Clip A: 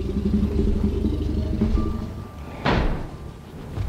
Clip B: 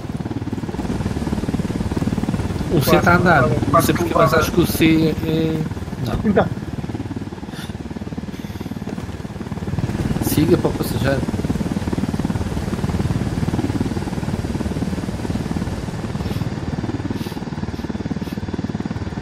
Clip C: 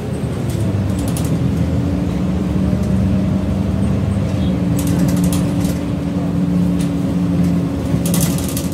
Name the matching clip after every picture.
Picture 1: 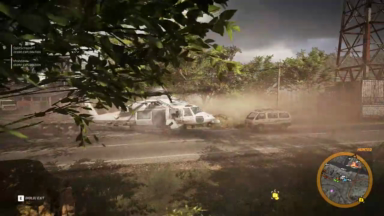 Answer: B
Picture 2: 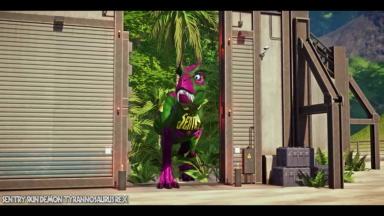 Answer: A